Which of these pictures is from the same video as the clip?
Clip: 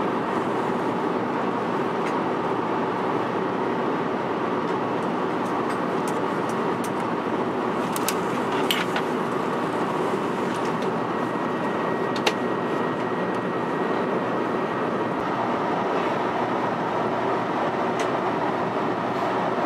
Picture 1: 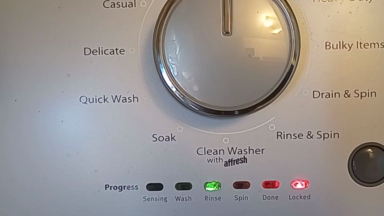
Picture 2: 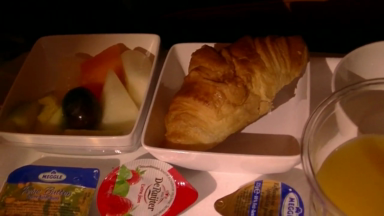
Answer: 2